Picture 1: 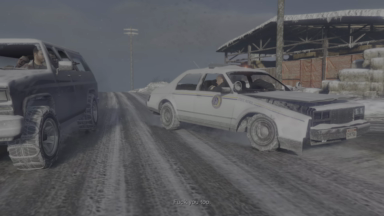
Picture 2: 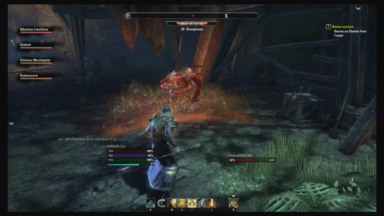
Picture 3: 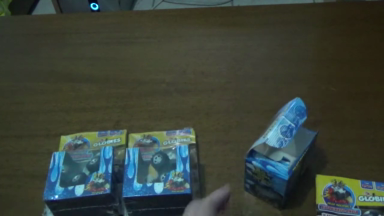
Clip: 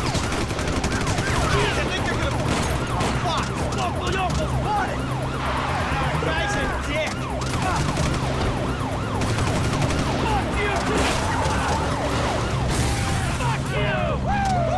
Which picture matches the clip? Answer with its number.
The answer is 1